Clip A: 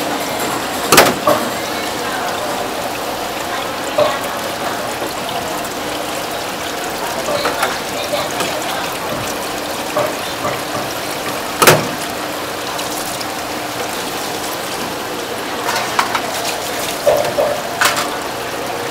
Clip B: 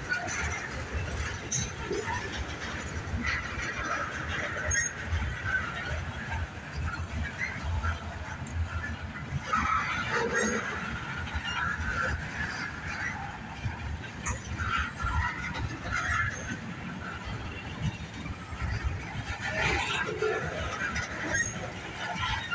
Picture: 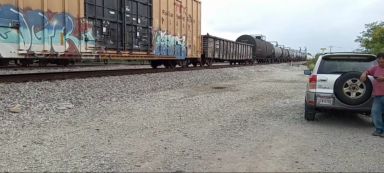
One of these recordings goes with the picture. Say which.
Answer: B